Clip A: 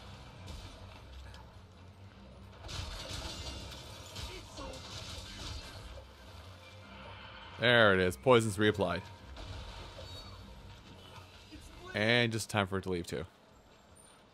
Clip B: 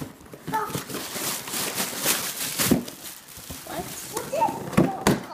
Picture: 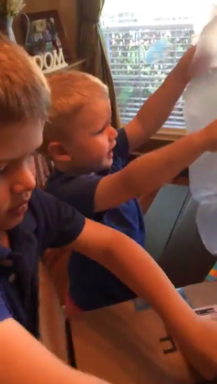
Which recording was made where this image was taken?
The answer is B